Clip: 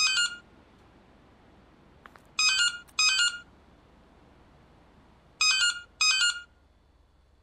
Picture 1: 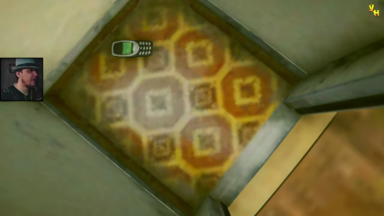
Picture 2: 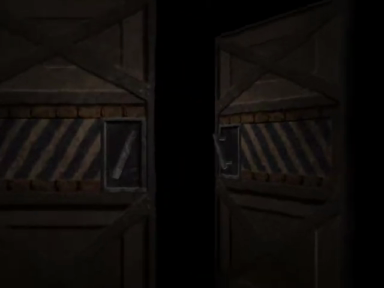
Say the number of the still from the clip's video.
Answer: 1